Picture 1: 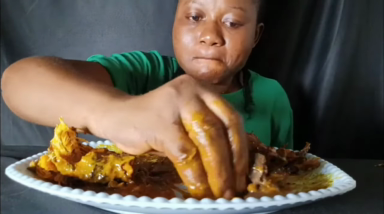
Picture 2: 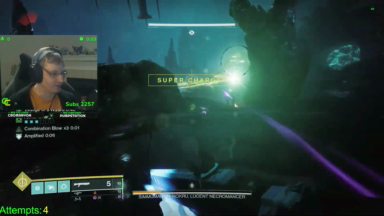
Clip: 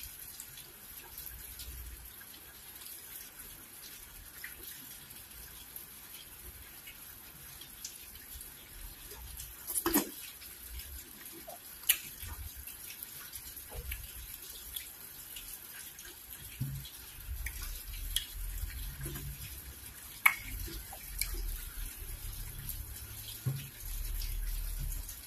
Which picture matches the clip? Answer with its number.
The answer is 1